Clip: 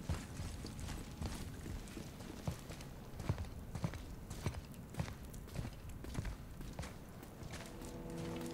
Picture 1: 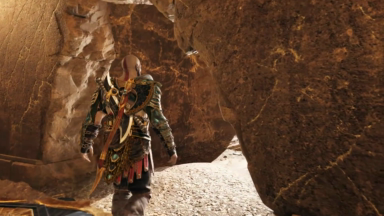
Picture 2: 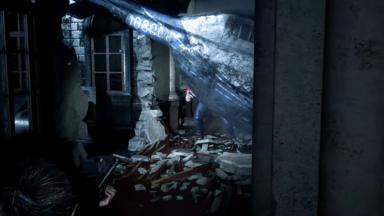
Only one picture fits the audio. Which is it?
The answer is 1